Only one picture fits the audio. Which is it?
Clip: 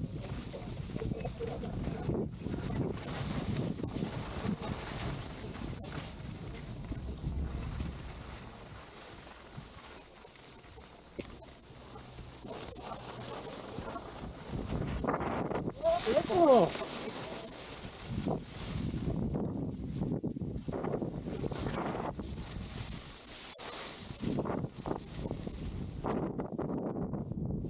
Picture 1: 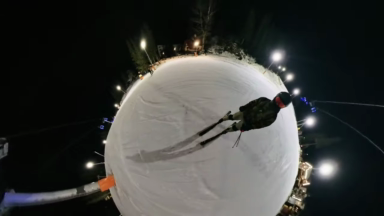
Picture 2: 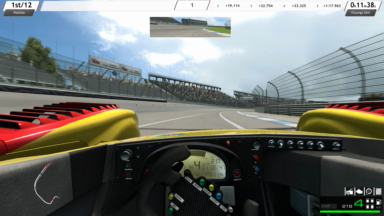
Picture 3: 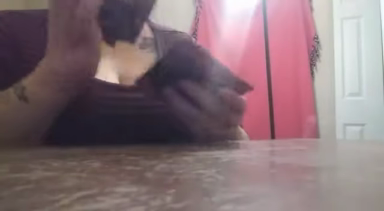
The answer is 1